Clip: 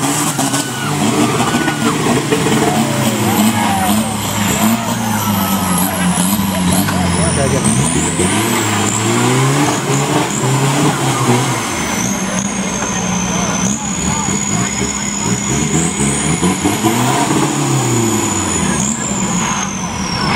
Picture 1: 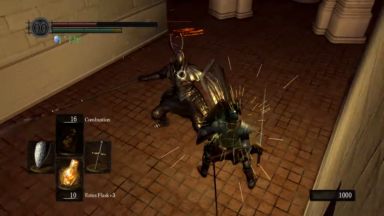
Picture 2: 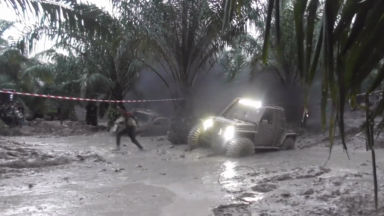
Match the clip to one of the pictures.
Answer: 2